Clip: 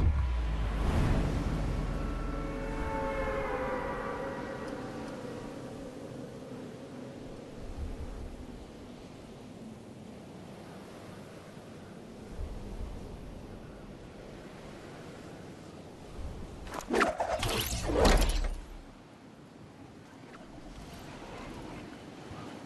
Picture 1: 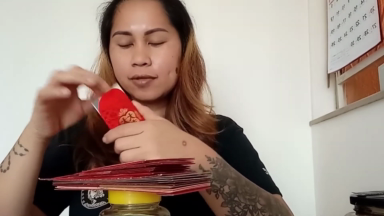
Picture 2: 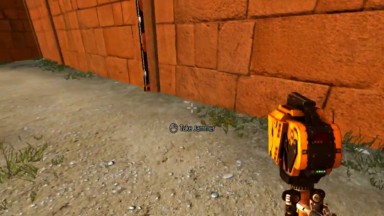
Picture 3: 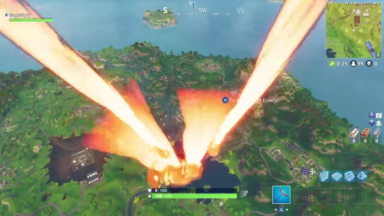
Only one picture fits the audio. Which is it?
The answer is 3